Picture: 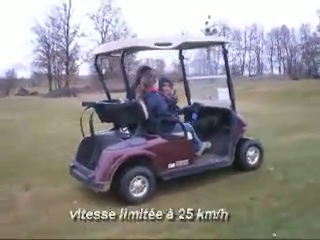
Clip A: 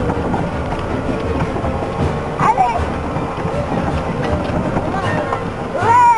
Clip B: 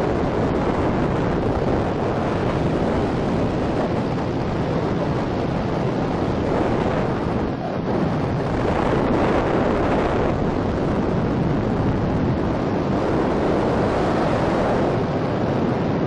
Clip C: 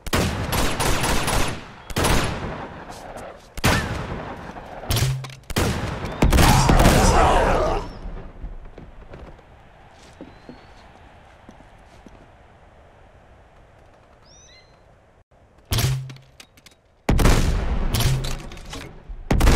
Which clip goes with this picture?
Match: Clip A